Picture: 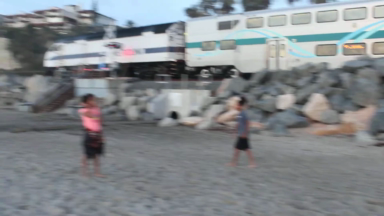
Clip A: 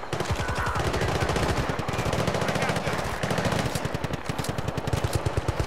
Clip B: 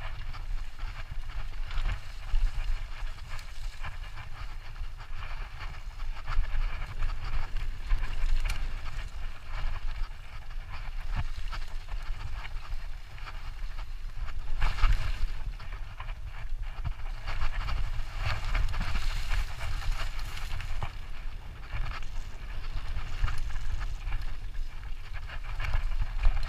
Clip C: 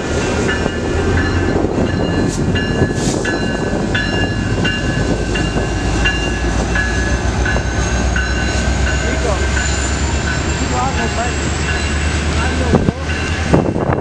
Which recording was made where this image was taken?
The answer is C